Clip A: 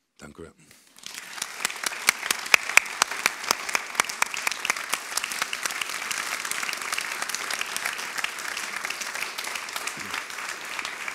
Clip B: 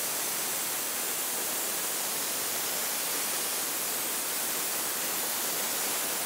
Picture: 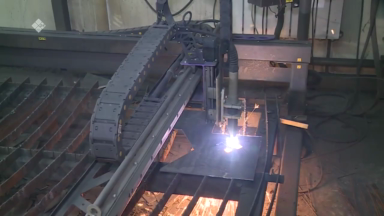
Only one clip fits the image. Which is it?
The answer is B